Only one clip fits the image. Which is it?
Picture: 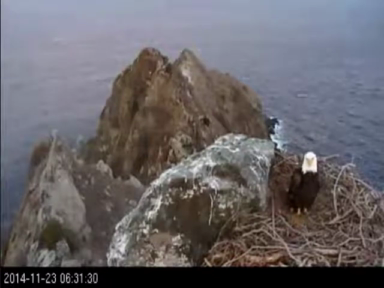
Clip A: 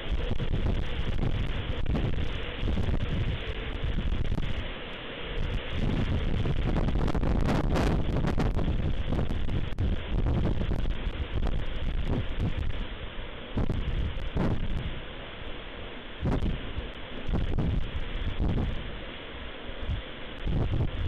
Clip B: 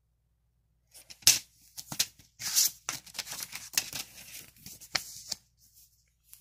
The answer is A